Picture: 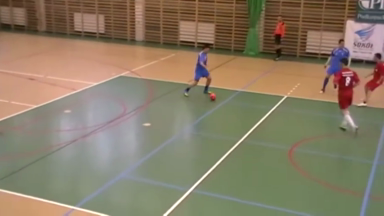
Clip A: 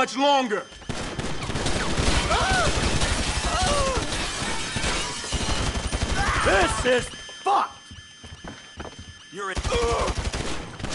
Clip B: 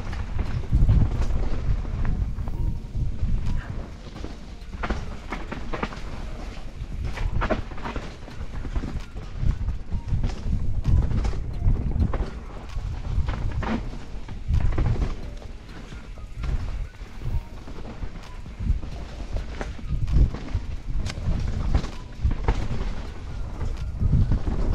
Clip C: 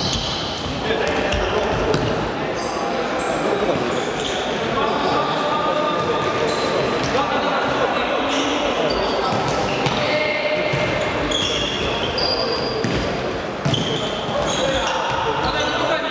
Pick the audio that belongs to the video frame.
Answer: C